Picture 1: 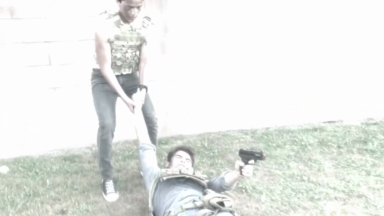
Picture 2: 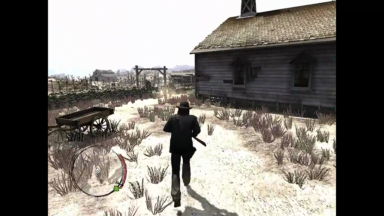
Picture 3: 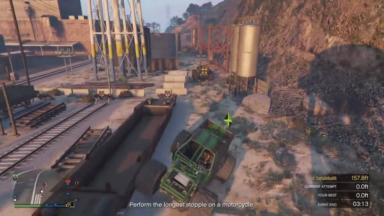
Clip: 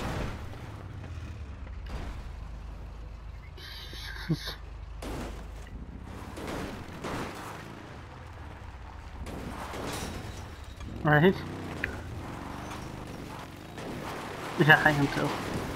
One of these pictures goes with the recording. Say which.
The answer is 3